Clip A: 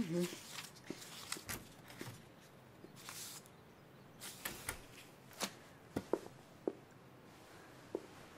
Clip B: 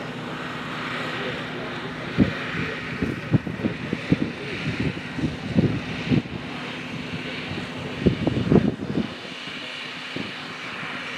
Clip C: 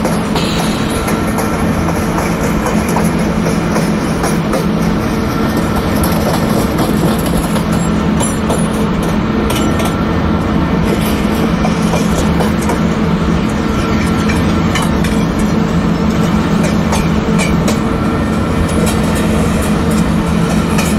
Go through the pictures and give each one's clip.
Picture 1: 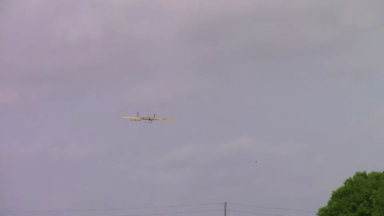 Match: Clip B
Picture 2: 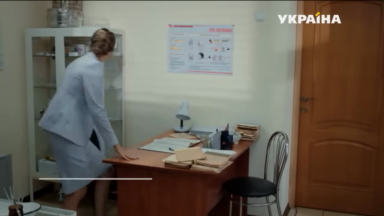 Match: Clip A